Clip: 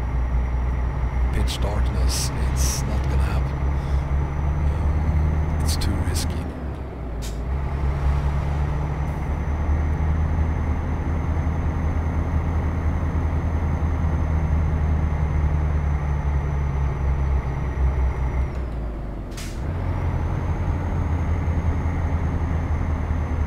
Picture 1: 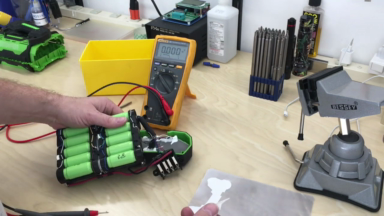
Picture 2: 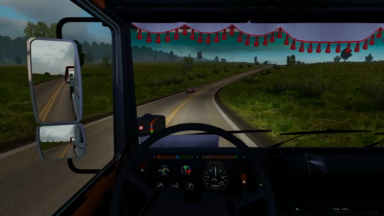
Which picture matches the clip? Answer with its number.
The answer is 2